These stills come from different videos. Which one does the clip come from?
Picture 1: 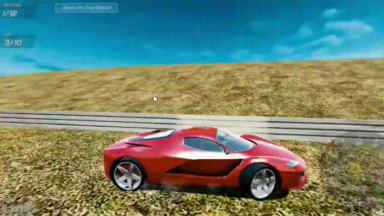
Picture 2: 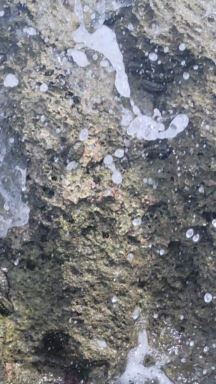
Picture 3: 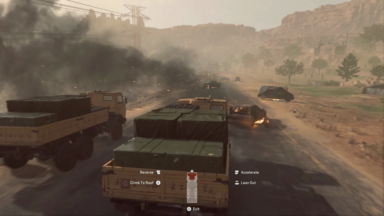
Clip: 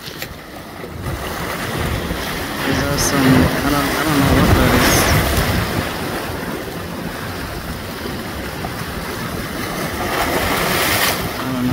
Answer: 2